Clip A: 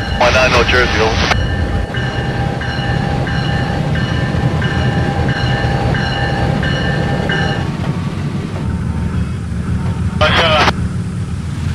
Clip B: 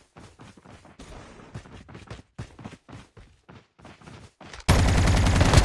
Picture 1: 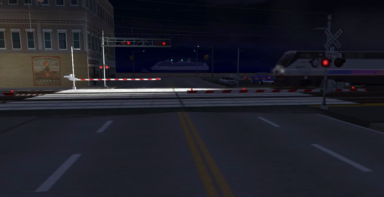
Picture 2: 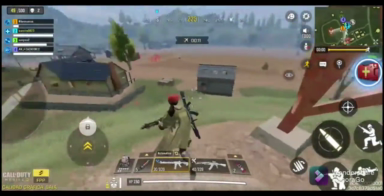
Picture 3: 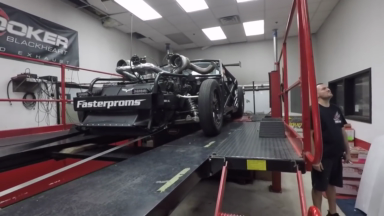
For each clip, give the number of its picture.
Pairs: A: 1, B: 2